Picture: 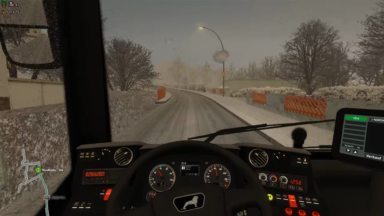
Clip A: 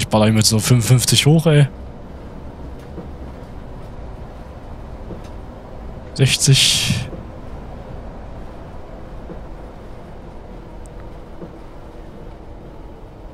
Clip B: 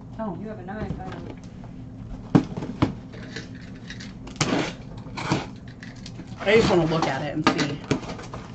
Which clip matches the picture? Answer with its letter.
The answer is A